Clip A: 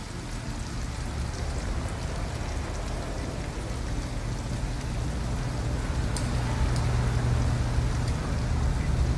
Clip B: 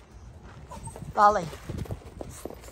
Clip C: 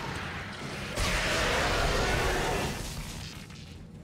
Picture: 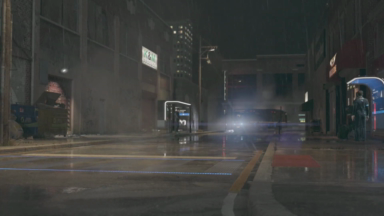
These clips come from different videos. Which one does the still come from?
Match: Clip A